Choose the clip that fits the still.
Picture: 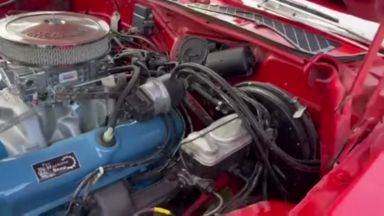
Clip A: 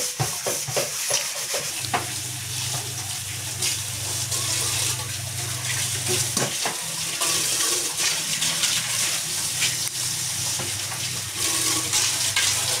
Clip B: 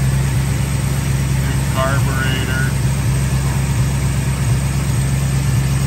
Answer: B